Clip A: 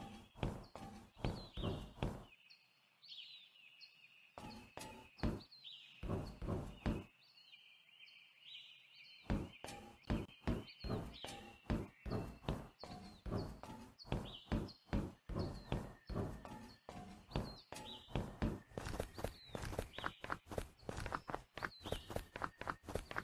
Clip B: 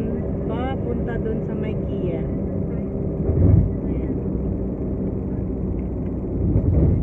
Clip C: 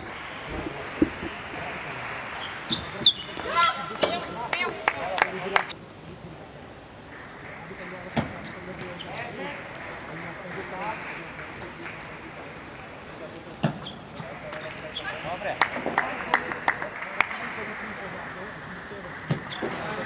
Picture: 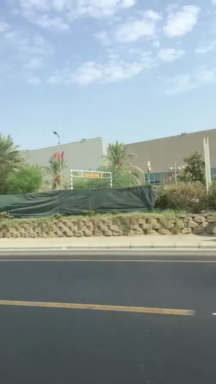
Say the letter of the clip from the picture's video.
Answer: B